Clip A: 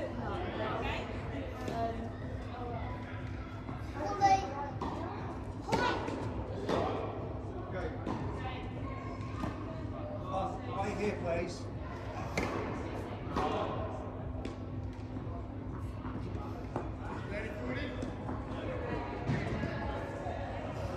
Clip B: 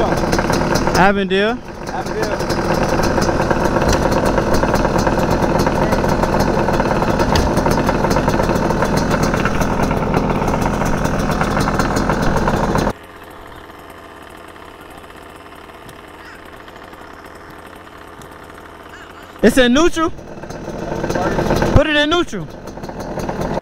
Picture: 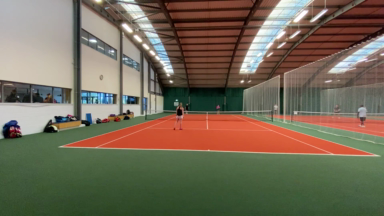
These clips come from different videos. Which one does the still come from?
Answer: A